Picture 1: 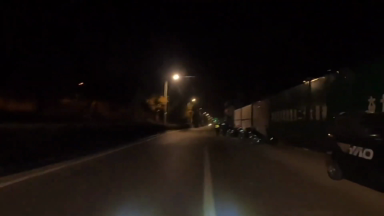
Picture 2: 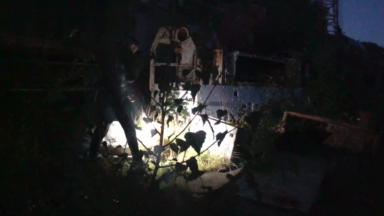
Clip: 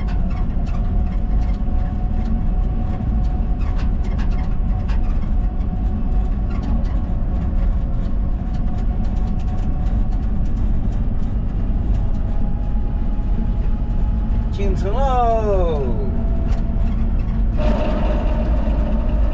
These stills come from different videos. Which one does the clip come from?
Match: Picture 1